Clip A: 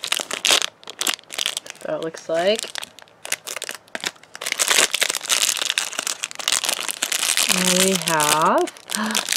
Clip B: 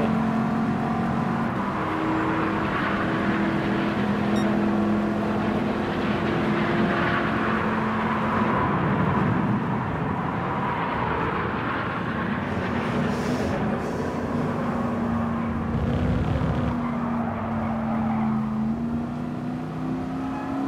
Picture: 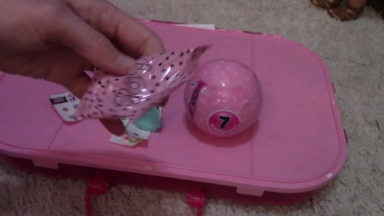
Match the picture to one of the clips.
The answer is A